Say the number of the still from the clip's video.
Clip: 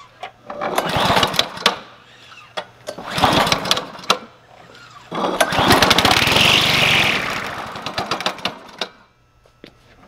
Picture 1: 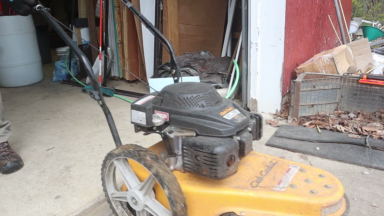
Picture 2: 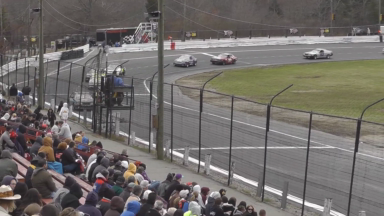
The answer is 1